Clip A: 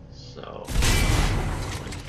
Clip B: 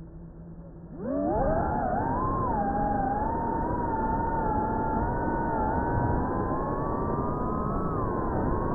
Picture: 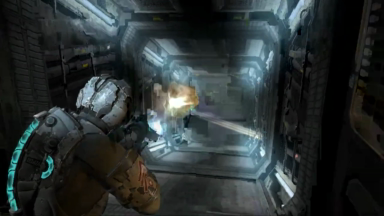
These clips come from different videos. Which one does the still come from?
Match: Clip A